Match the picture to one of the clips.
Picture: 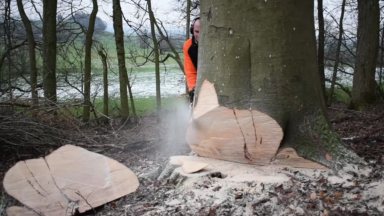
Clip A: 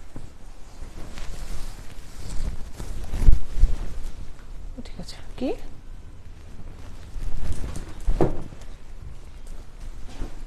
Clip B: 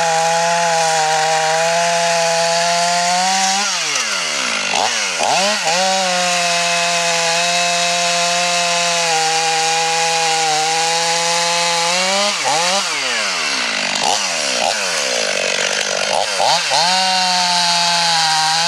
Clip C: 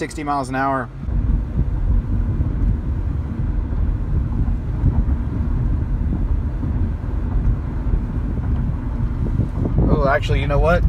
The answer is B